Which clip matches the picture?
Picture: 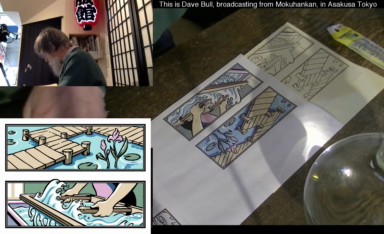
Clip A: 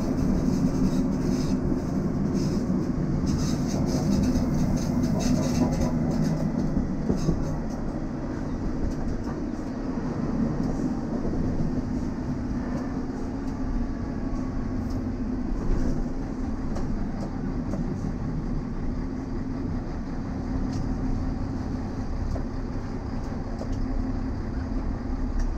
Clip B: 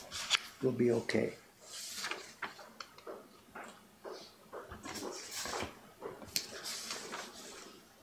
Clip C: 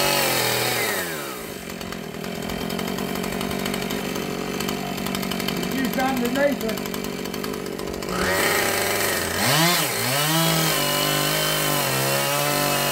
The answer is B